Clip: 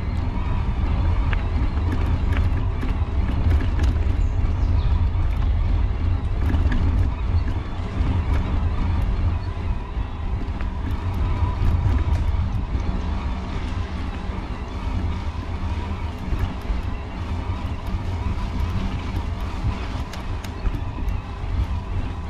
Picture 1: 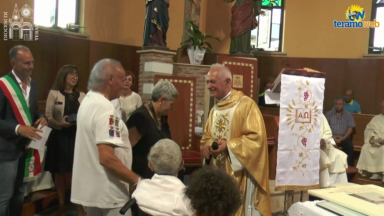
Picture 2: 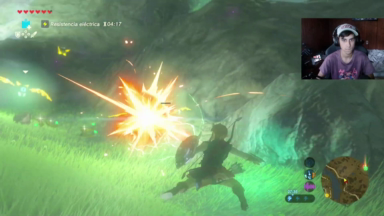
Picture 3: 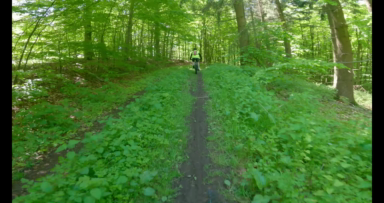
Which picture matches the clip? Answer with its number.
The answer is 3